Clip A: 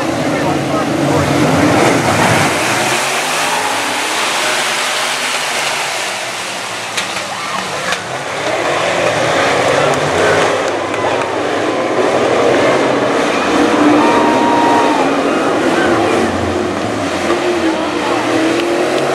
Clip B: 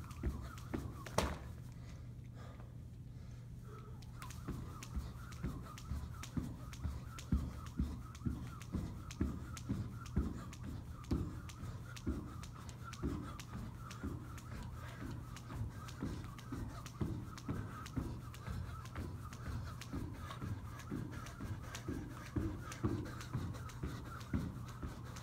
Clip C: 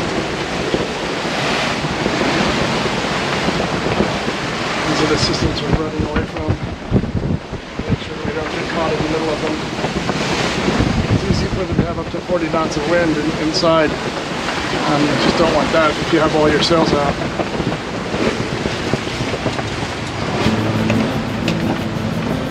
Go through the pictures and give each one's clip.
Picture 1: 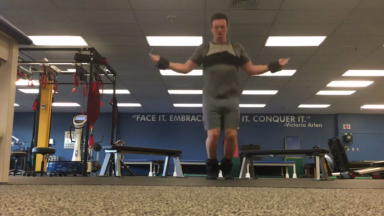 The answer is B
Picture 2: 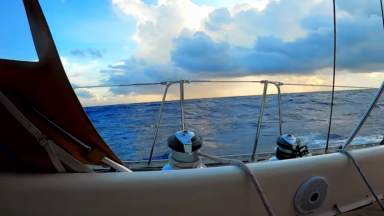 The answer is C